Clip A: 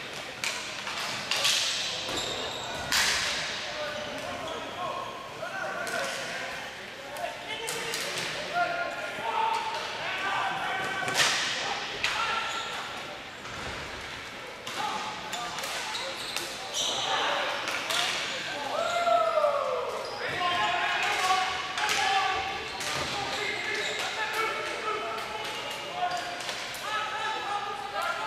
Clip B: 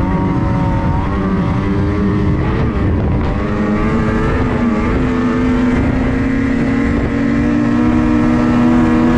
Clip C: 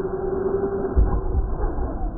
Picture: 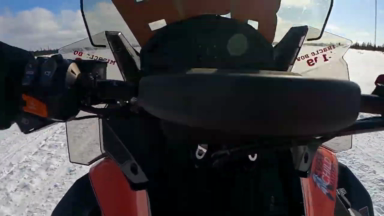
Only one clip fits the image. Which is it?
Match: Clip B